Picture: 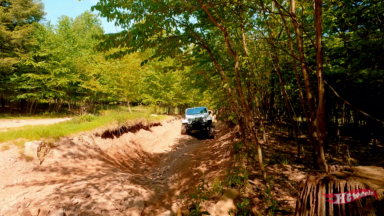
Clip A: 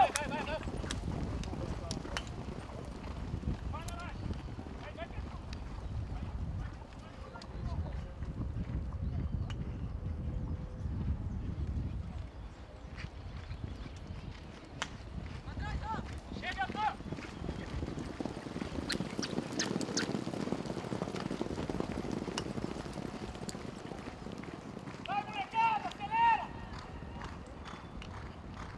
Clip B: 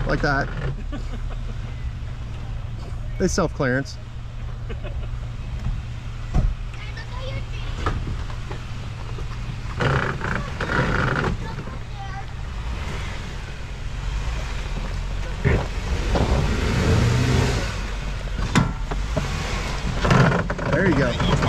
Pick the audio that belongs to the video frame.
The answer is B